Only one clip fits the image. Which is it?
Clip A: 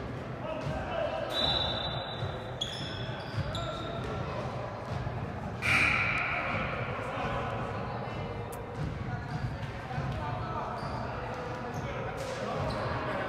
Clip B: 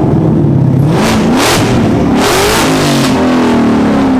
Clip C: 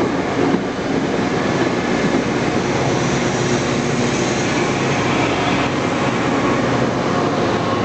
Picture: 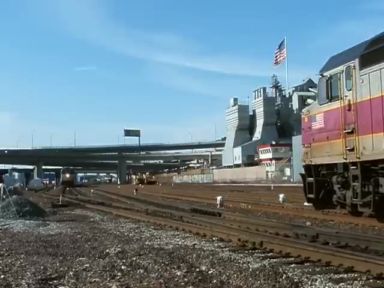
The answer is C